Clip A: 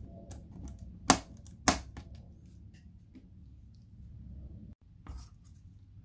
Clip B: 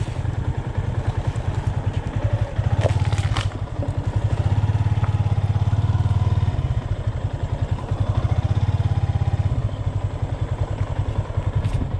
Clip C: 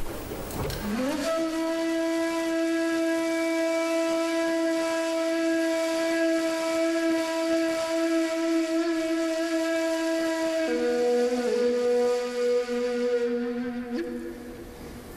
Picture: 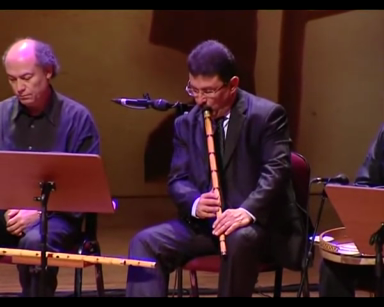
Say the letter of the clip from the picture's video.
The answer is C